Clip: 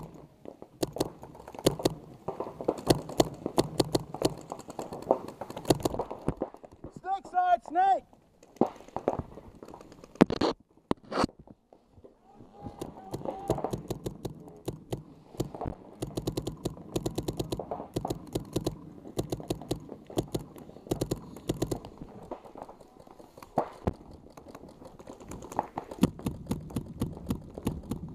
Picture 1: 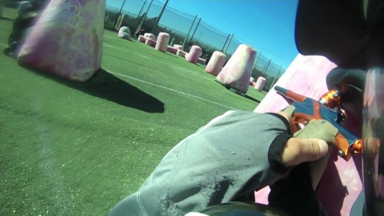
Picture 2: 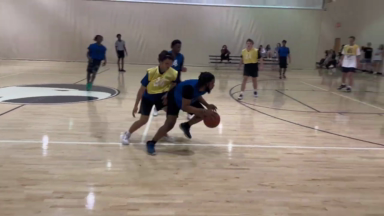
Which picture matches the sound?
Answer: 1